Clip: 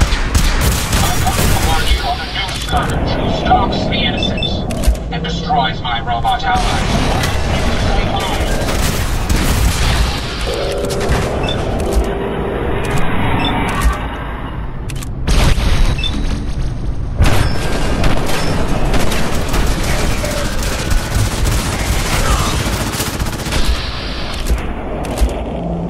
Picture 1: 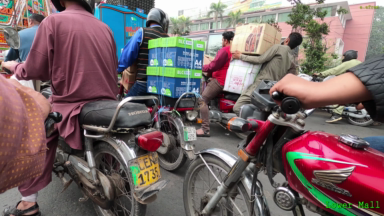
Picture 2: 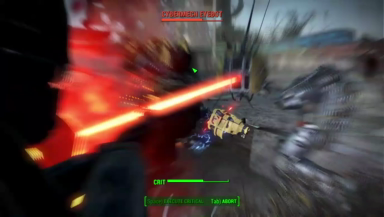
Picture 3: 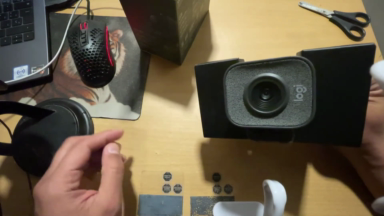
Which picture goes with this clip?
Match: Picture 2